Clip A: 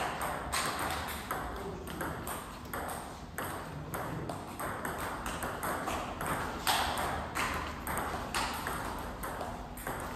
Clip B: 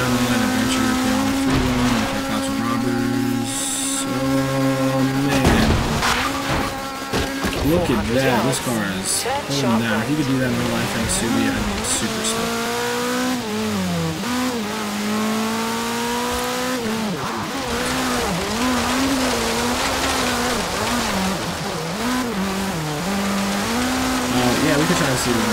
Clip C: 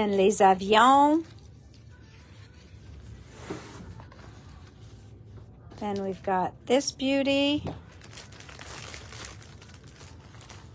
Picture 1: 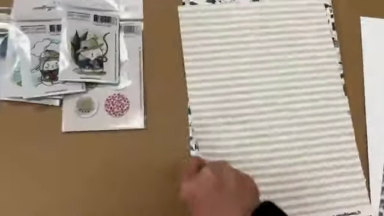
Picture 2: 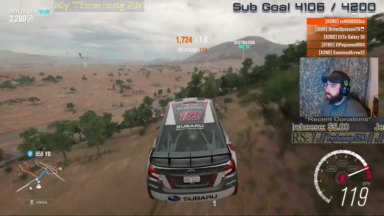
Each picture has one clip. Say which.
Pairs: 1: C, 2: B